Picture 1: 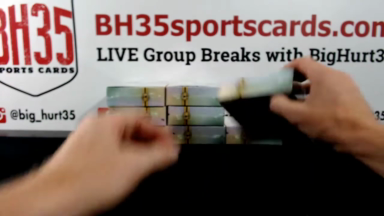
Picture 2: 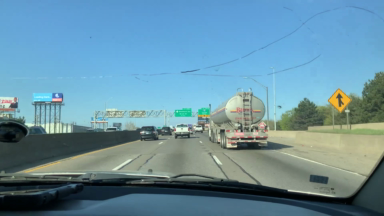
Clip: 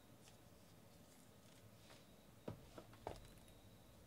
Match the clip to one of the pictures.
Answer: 1